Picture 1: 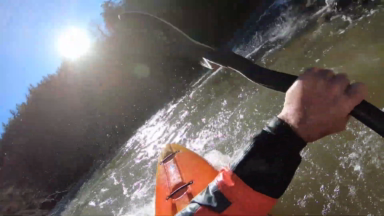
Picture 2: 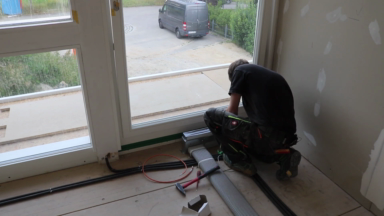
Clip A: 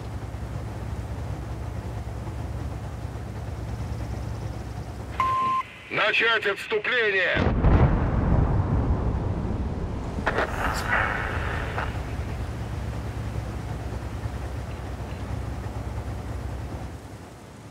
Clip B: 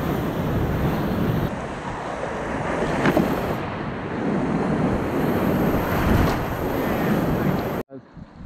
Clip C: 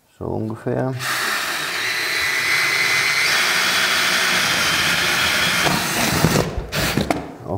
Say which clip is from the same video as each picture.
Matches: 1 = B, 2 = C